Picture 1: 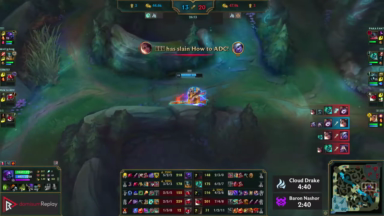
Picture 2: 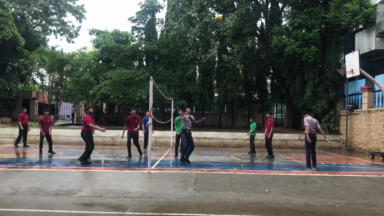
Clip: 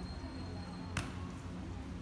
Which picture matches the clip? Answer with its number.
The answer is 2